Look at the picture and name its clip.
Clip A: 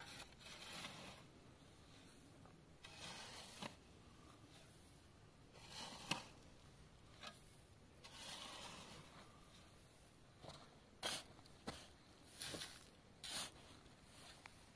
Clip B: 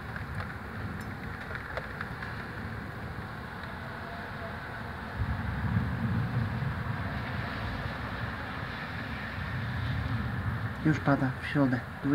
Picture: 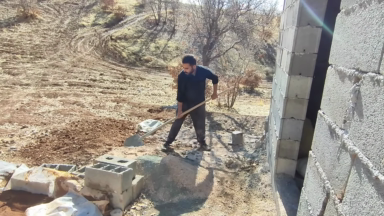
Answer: A